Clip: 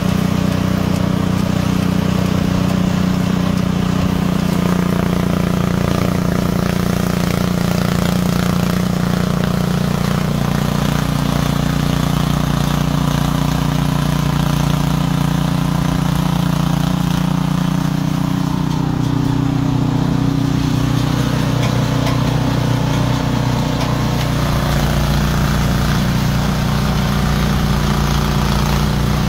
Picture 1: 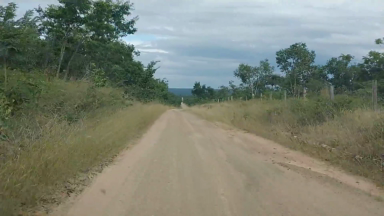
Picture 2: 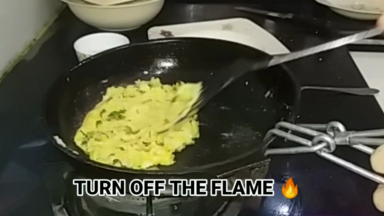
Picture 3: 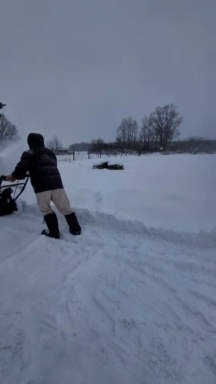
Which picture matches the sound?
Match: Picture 3